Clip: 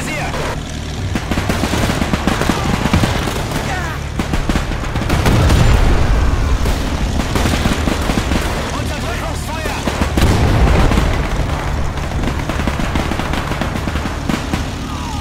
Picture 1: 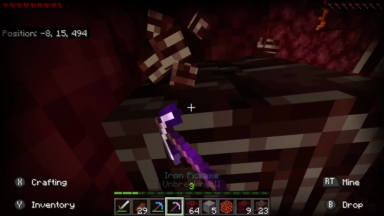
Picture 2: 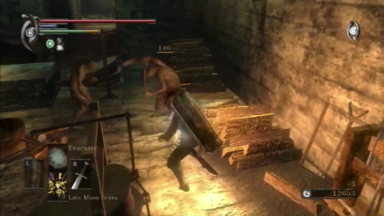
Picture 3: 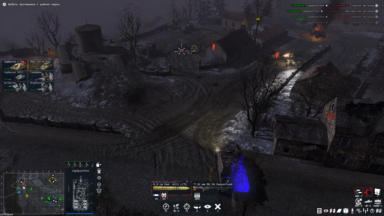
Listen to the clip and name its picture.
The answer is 3